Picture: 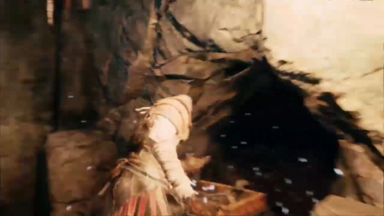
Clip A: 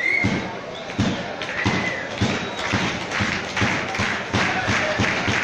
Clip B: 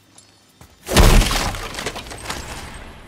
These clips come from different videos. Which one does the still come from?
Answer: B